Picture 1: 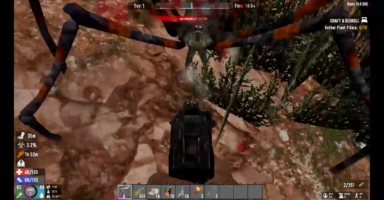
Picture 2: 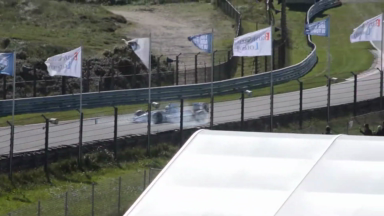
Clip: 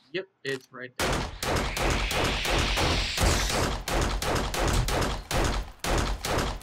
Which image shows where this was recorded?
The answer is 1